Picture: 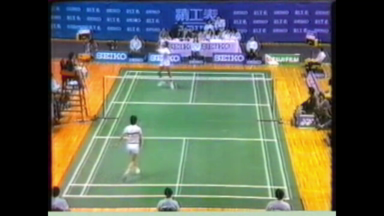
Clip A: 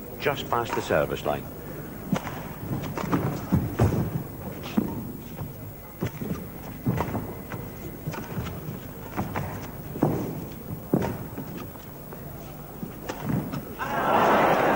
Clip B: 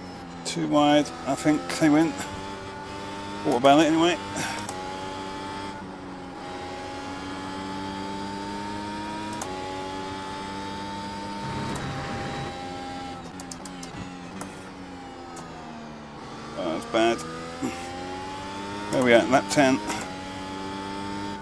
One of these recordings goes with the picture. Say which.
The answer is A